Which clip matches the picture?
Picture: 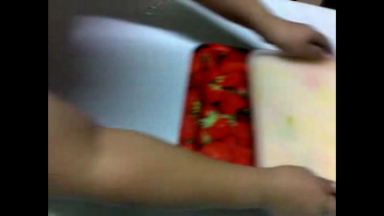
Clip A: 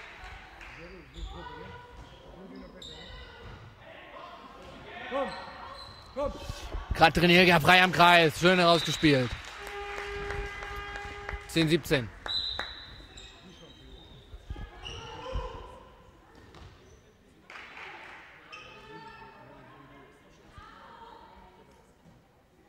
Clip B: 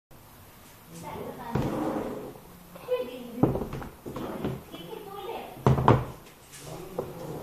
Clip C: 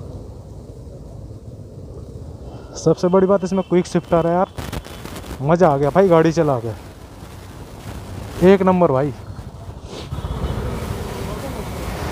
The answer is B